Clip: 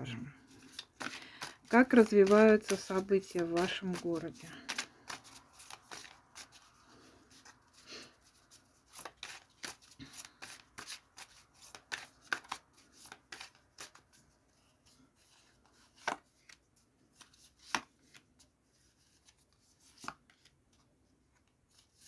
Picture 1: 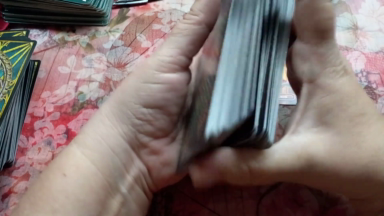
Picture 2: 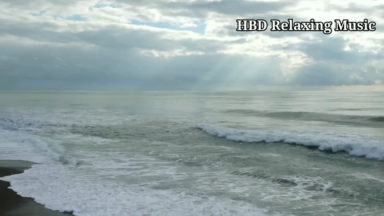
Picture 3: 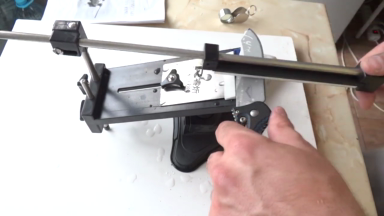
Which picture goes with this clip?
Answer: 1